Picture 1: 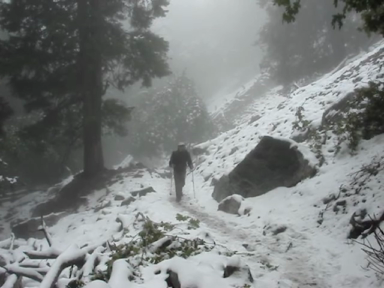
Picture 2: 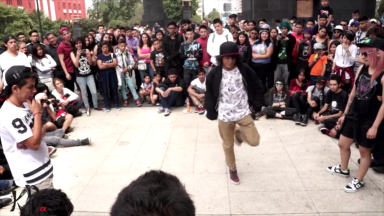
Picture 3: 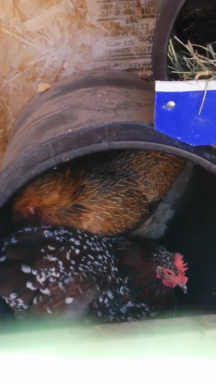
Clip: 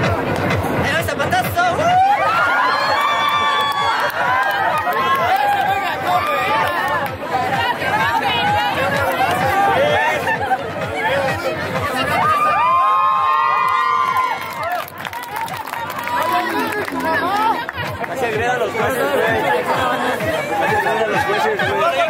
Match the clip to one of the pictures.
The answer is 2